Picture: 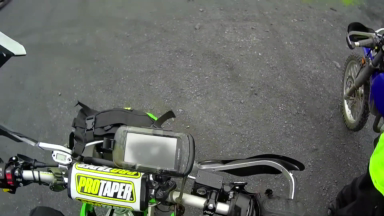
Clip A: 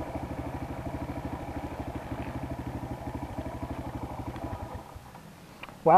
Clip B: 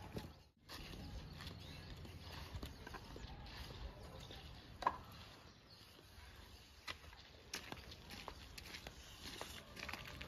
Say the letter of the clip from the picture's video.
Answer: A